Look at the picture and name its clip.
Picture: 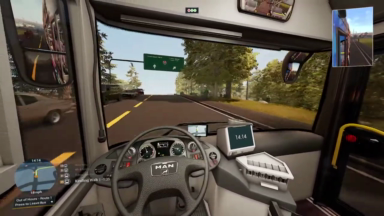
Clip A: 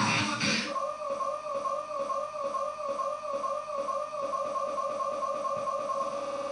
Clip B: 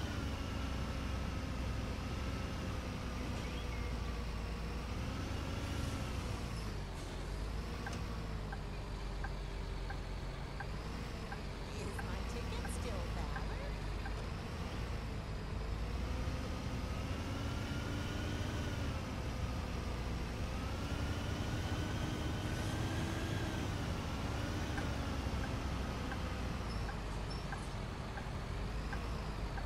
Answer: B